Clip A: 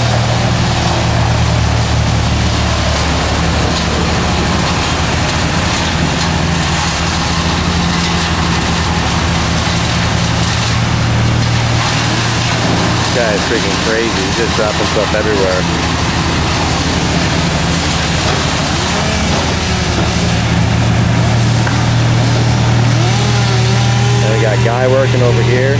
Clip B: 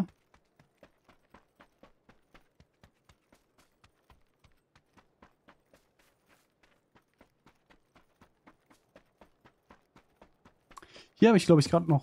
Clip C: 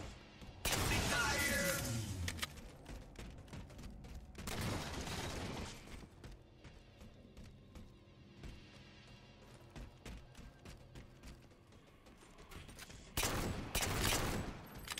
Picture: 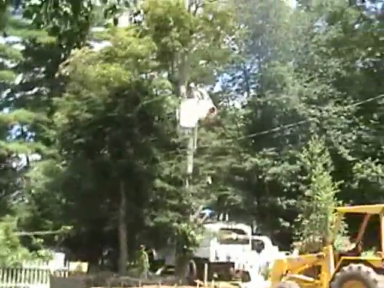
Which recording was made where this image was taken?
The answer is A